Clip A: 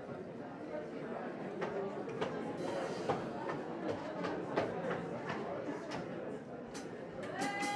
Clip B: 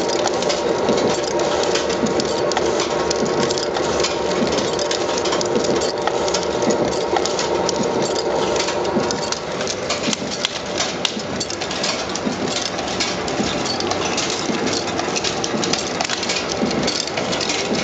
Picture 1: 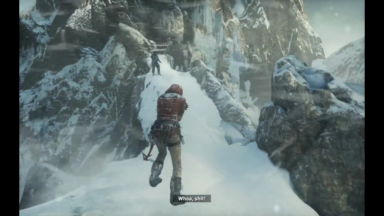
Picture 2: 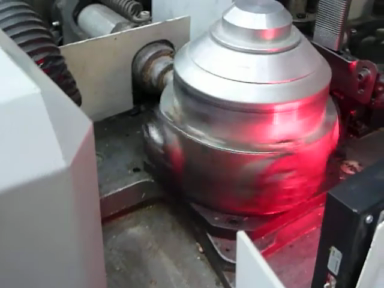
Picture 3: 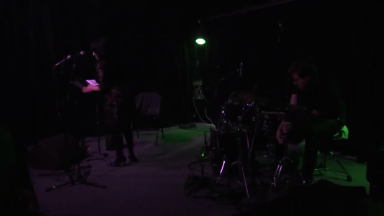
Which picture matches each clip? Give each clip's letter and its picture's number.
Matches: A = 3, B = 2